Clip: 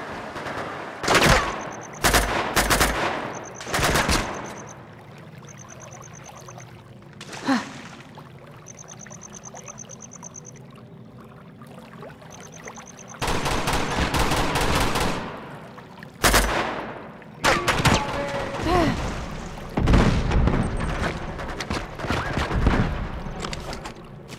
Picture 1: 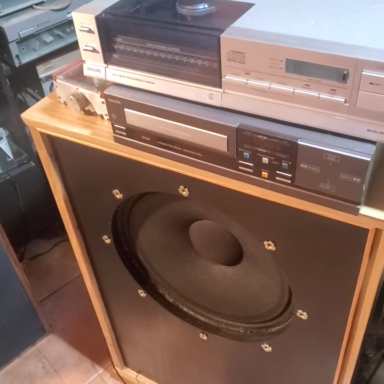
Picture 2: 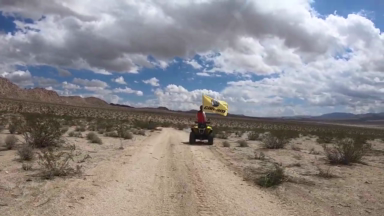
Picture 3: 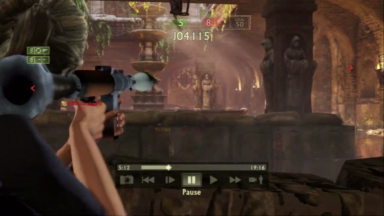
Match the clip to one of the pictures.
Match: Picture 3